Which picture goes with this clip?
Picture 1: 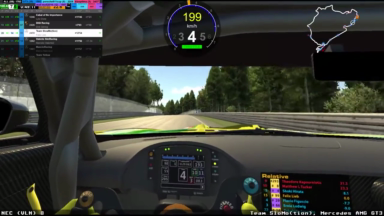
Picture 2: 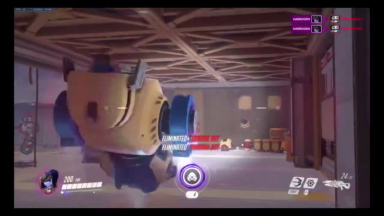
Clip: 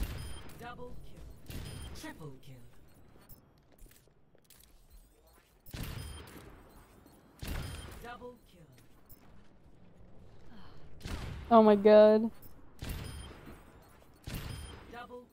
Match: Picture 2